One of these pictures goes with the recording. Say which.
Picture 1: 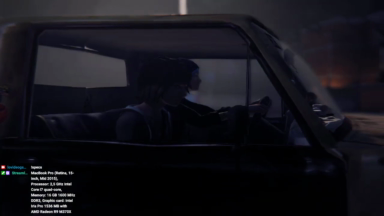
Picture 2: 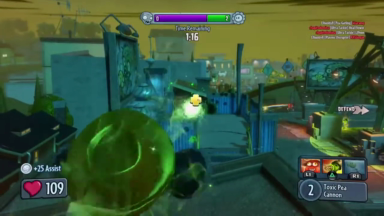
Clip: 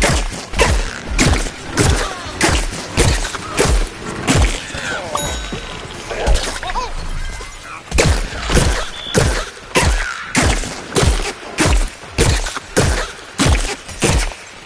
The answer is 2